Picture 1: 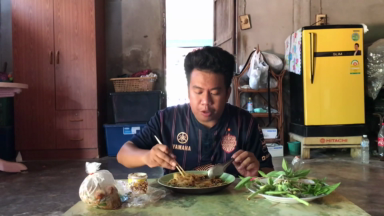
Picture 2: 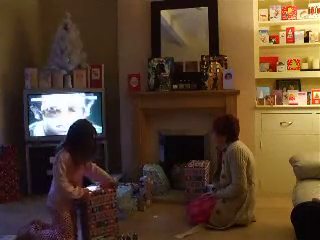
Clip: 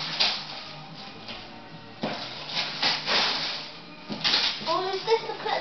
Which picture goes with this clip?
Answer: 2